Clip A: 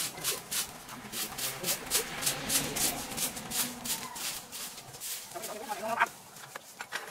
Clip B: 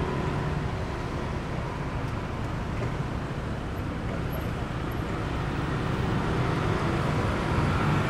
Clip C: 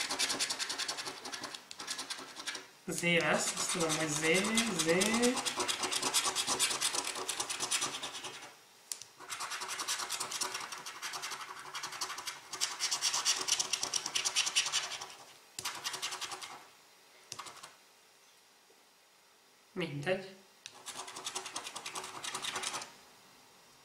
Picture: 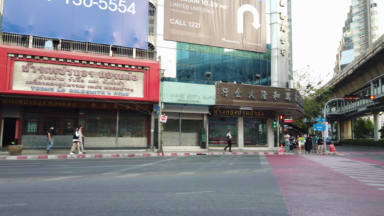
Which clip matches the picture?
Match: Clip B